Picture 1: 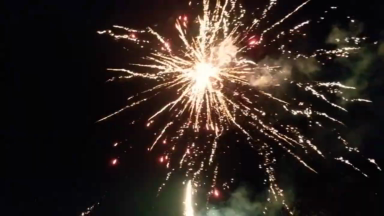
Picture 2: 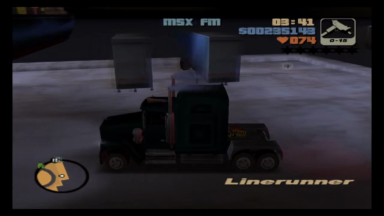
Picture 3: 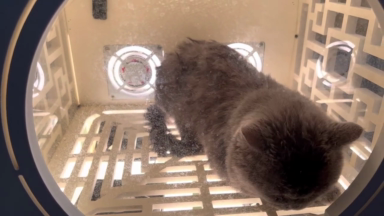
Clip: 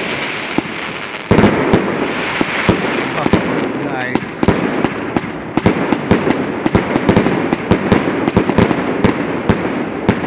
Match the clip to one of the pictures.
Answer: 1